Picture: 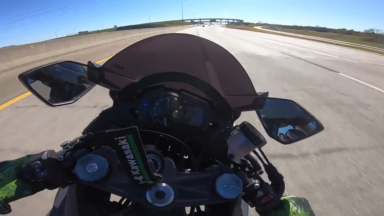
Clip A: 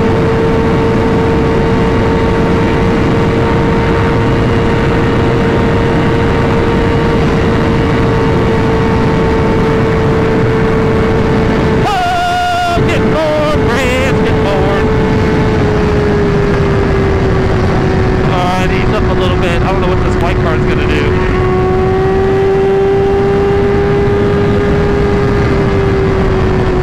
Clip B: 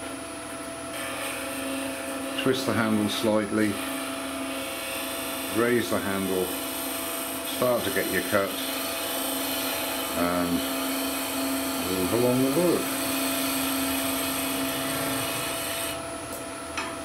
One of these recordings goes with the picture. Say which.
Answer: A